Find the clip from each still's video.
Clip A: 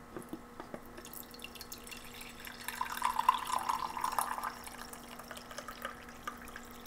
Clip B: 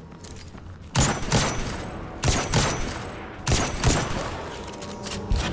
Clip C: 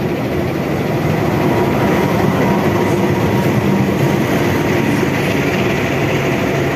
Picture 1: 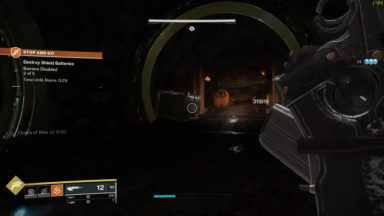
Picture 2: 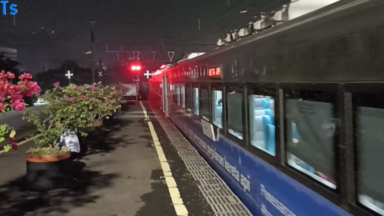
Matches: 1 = B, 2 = C